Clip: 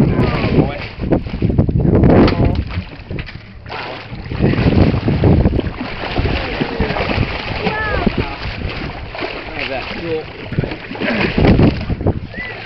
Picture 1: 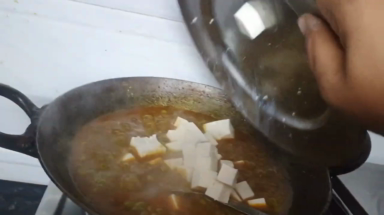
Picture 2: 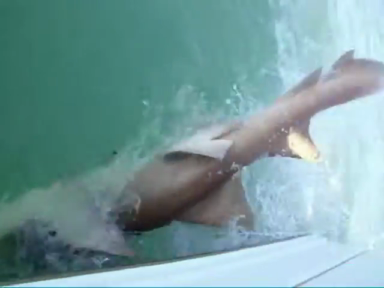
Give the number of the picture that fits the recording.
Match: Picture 2